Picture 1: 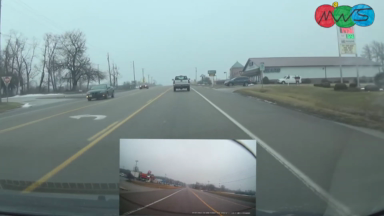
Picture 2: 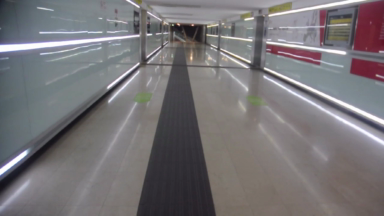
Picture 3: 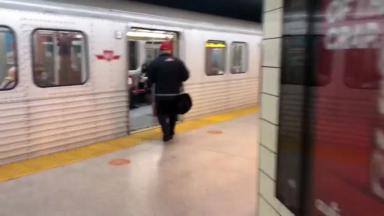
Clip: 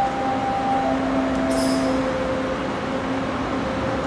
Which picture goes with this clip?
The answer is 3